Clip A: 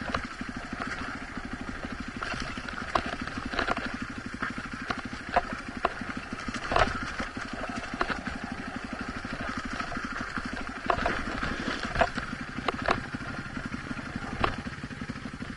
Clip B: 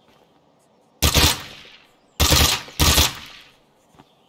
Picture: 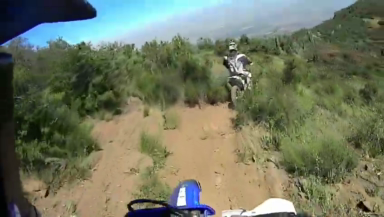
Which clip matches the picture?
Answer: A